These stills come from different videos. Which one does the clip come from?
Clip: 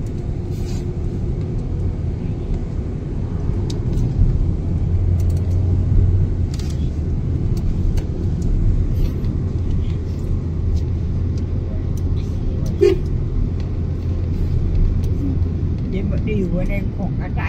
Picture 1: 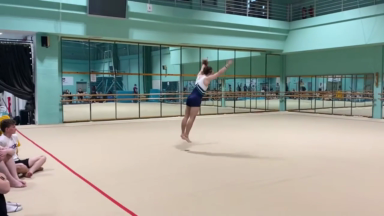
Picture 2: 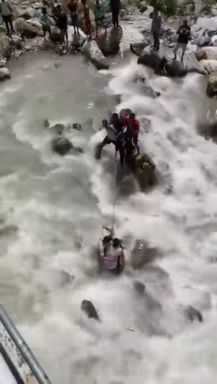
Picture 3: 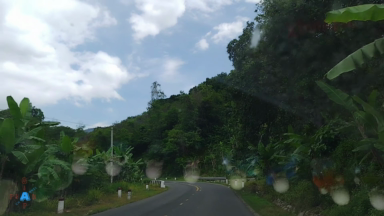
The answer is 3